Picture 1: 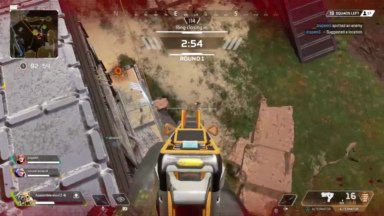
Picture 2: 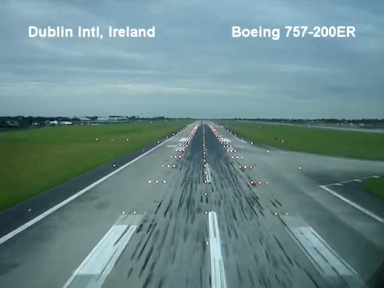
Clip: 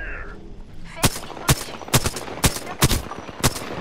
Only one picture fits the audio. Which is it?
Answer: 1